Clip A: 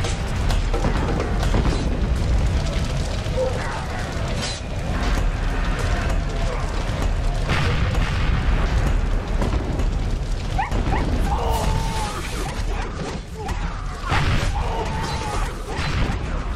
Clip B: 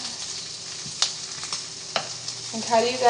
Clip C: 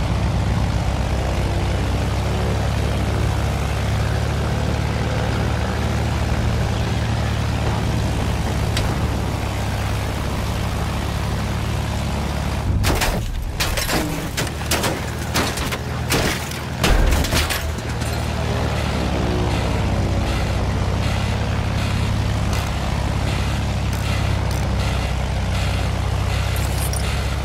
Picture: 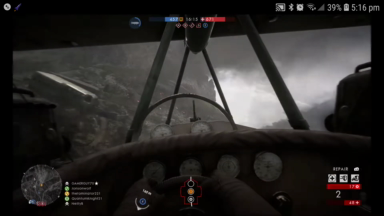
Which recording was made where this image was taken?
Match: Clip C